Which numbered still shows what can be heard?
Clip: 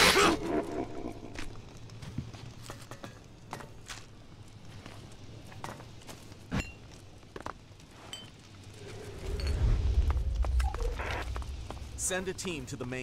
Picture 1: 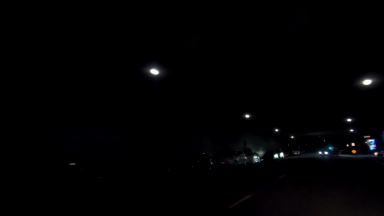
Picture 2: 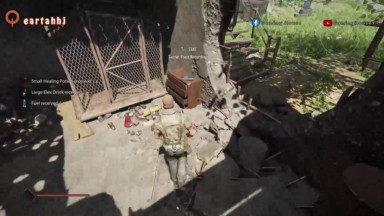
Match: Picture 2